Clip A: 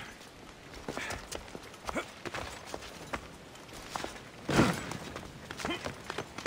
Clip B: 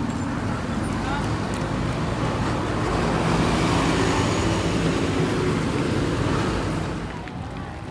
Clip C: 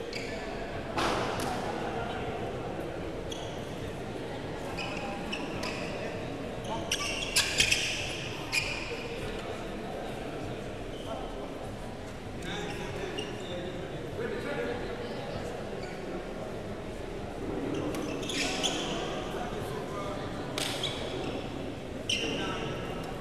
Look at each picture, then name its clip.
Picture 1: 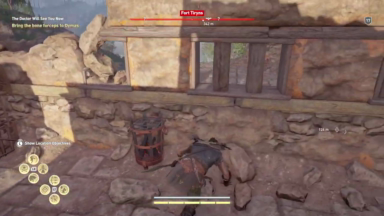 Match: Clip A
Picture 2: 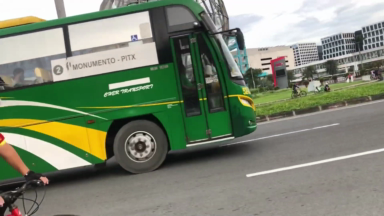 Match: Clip B